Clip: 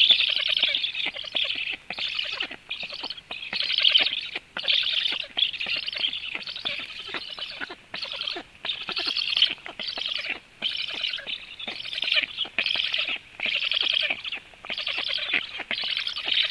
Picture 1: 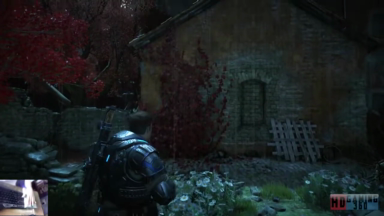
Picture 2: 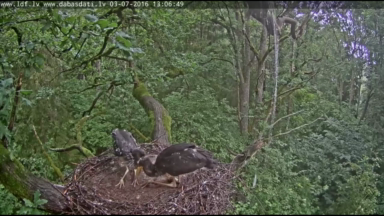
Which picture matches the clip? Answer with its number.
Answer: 2